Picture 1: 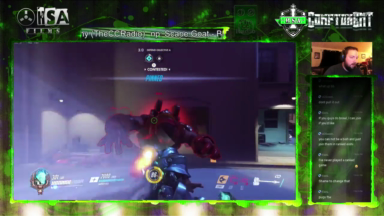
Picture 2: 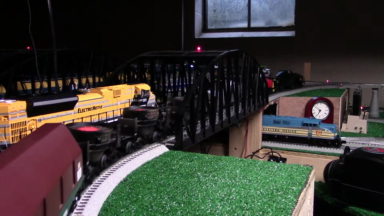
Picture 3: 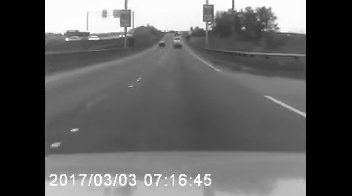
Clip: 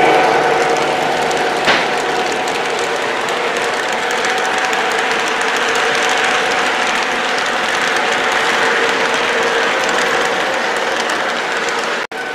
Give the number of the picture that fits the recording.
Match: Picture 2